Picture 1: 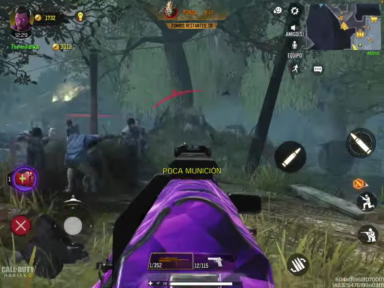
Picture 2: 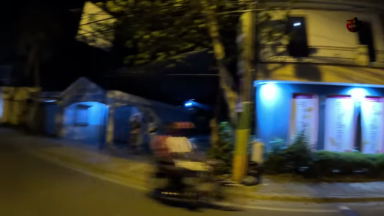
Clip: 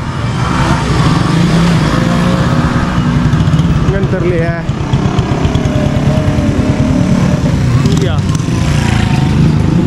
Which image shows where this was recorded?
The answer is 2